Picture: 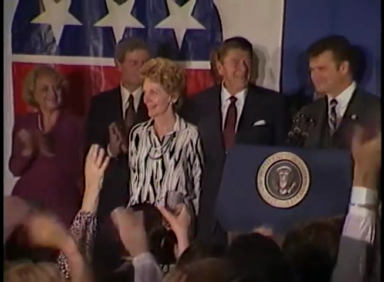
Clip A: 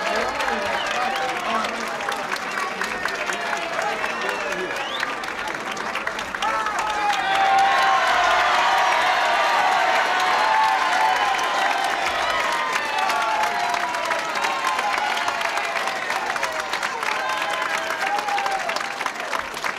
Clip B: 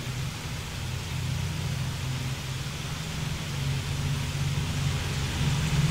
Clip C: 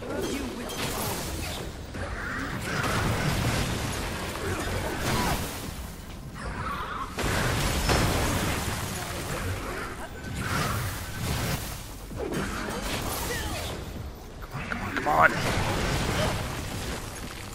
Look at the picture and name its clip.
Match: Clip A